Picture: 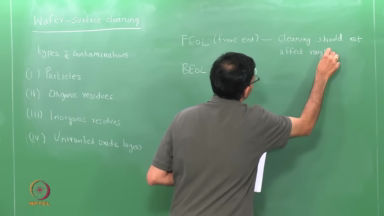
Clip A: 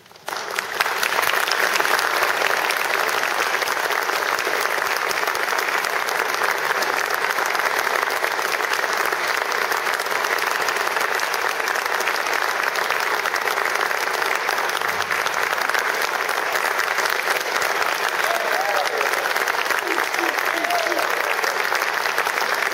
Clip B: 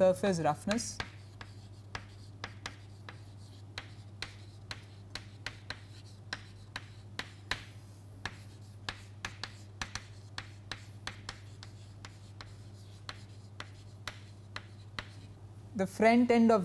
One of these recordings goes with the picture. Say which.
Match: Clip B